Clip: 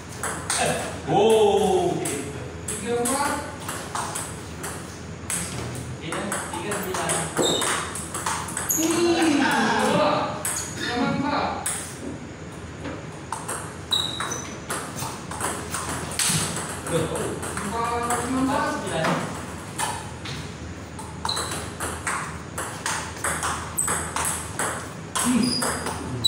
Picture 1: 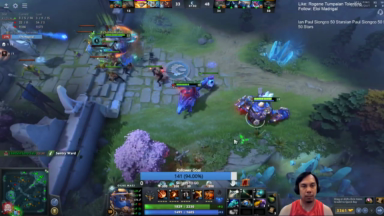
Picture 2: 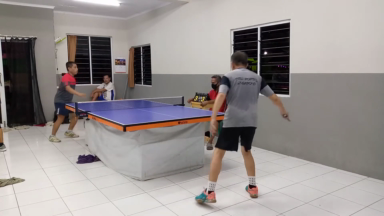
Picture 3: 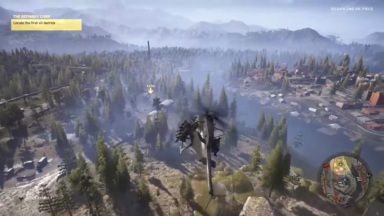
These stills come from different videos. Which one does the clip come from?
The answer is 2